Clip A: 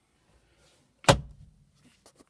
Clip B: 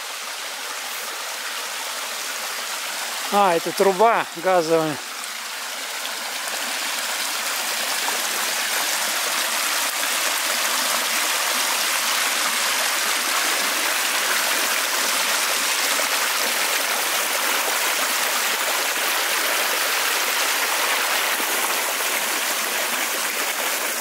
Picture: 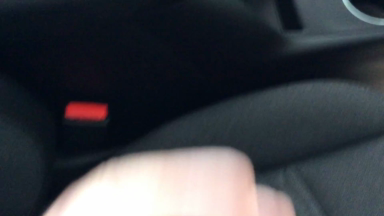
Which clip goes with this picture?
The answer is A